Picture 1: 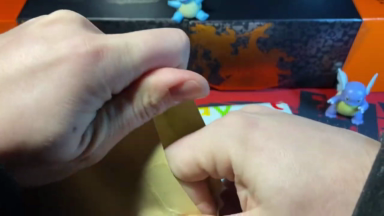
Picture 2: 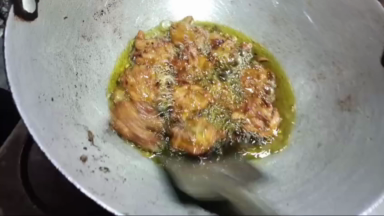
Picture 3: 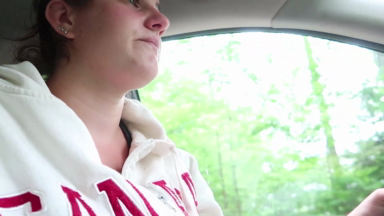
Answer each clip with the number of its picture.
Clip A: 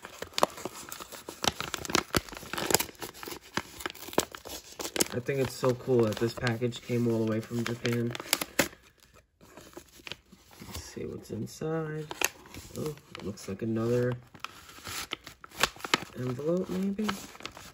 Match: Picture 1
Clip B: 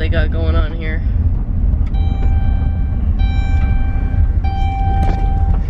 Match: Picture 3